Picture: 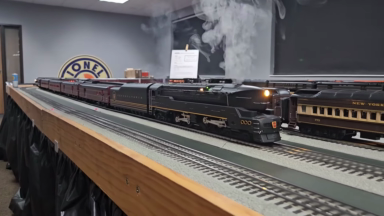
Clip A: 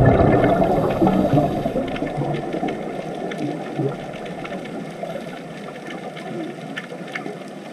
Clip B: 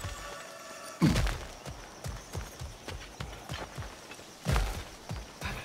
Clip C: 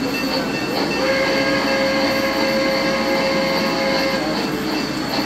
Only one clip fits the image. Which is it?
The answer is C